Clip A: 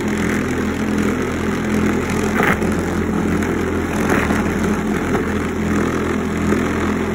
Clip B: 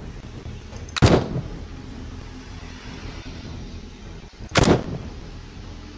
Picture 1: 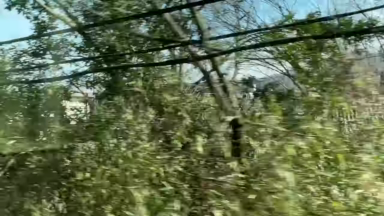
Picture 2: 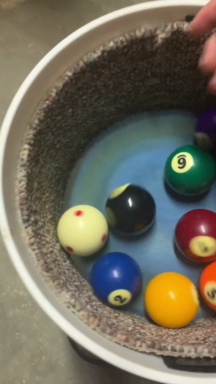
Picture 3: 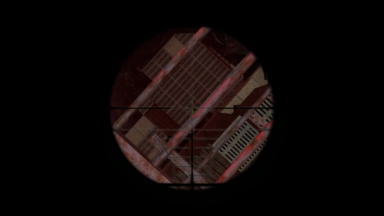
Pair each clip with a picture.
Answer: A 2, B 3